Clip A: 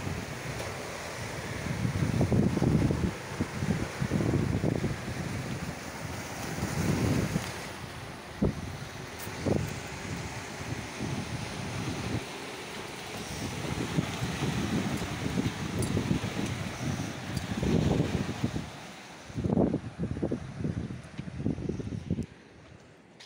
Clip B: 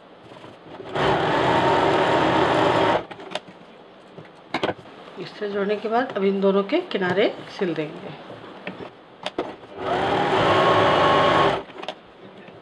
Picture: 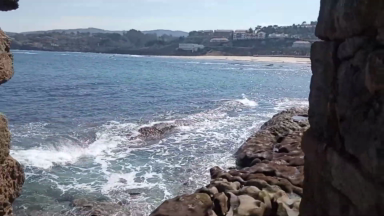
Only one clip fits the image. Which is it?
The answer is A